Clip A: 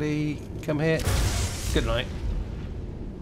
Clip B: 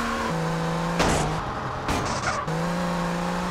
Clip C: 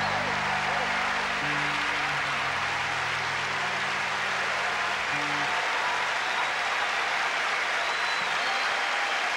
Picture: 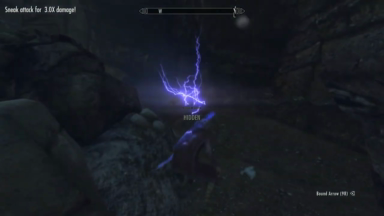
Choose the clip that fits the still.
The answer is A